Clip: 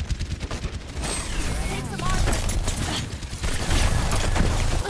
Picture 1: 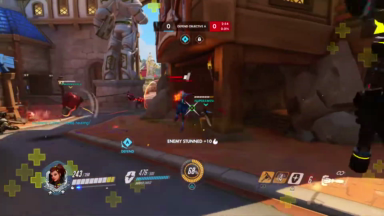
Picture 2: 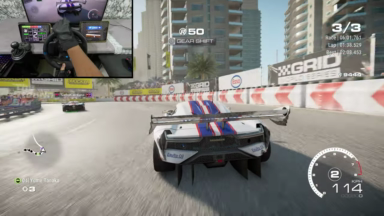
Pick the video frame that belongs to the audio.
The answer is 1